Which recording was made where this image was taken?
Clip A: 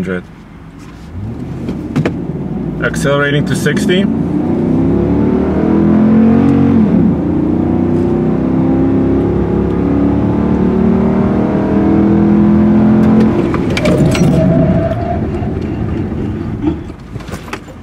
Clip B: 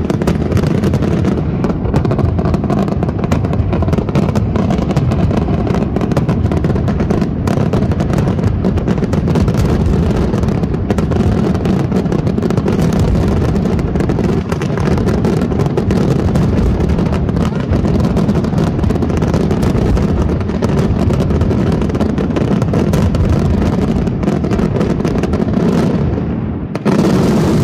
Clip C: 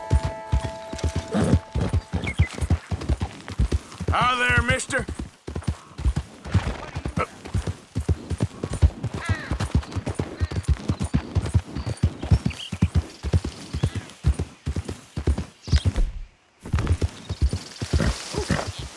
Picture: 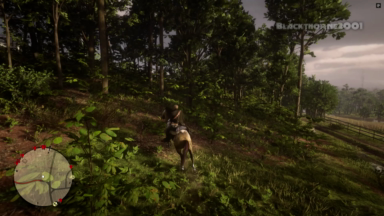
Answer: C